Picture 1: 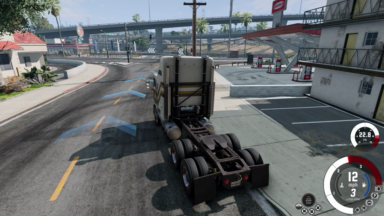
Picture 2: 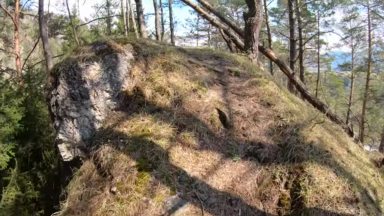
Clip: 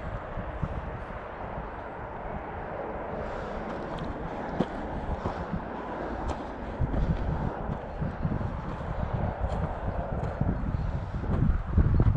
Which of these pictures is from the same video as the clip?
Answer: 2